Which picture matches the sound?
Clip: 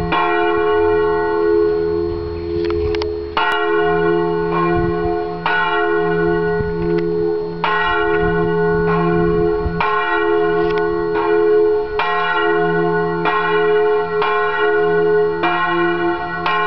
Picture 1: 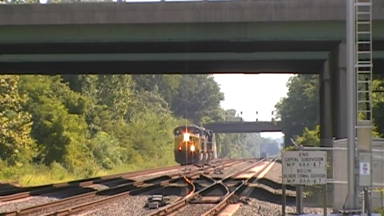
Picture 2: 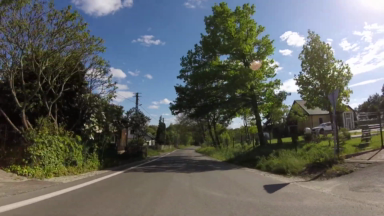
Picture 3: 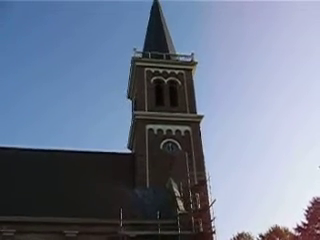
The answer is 3